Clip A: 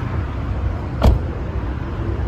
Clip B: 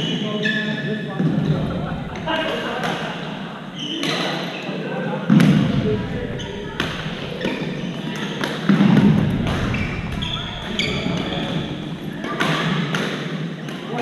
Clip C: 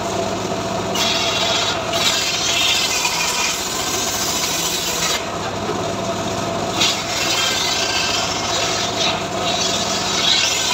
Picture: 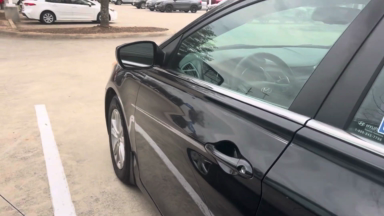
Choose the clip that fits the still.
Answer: A